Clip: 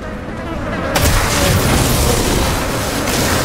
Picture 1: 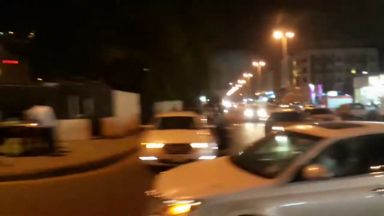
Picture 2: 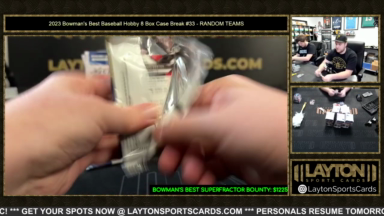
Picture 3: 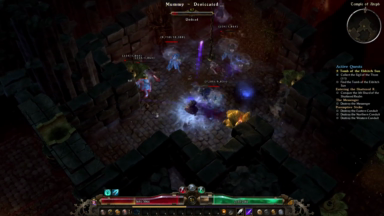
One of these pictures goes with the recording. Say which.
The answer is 3